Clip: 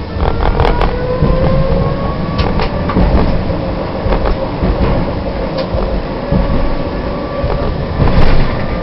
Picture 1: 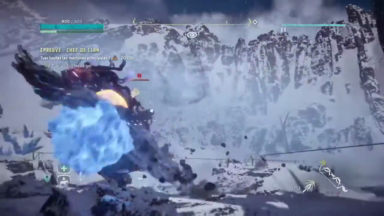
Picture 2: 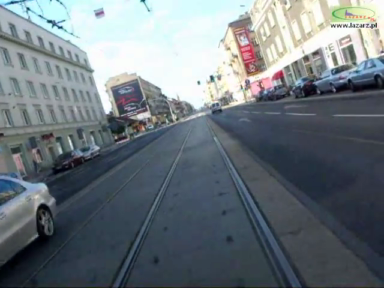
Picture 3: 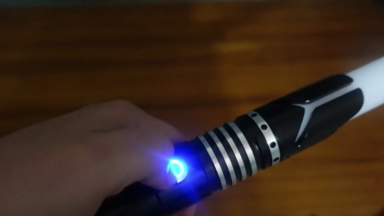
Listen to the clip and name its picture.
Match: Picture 2